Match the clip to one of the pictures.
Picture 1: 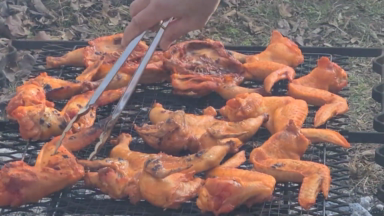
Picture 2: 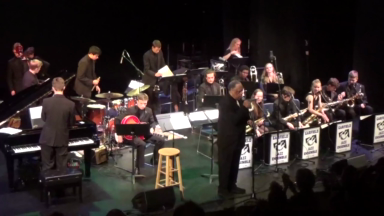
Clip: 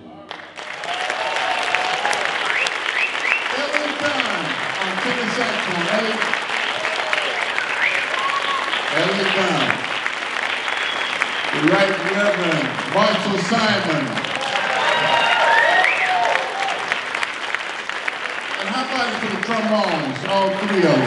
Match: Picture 2